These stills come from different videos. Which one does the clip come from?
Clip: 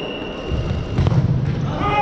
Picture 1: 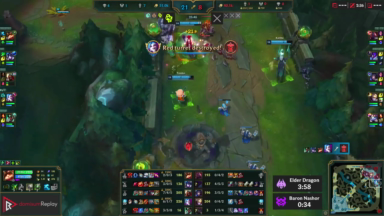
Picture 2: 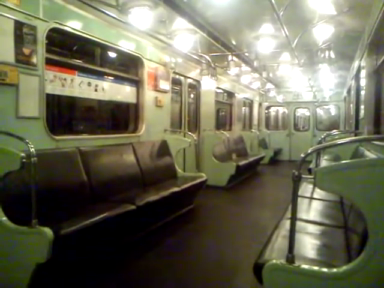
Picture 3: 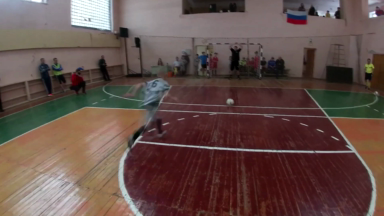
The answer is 3